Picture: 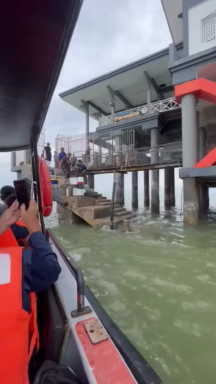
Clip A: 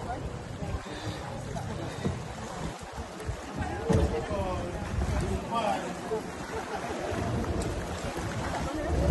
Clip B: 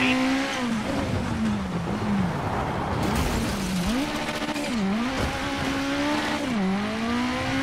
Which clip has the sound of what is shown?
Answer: A